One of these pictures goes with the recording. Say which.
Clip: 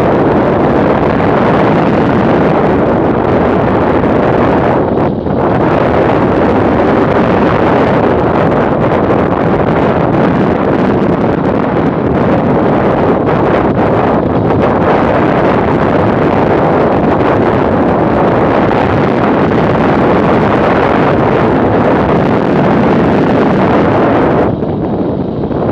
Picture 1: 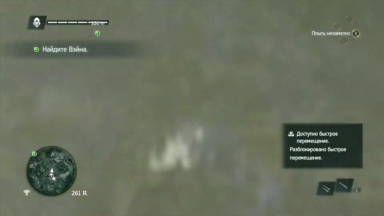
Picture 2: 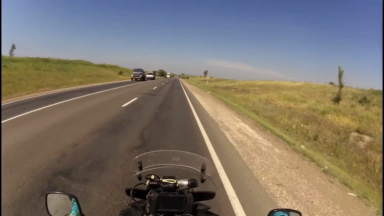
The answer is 2